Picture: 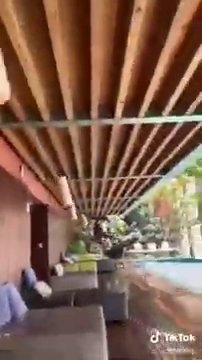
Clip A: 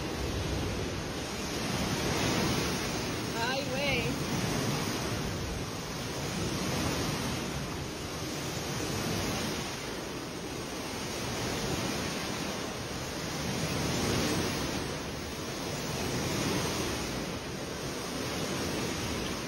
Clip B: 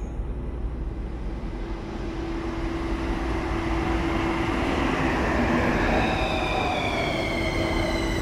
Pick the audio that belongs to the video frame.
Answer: A